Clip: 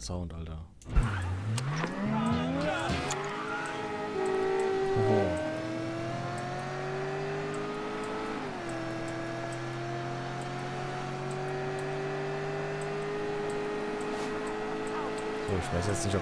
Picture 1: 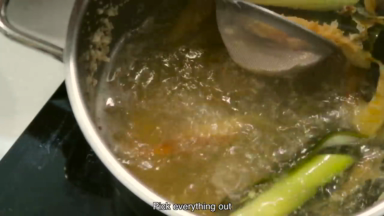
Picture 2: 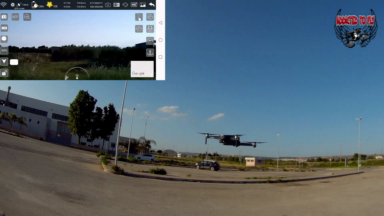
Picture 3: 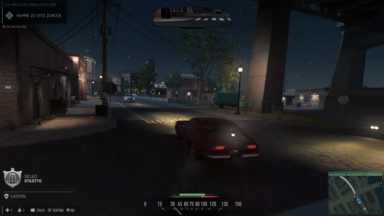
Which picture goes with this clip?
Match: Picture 3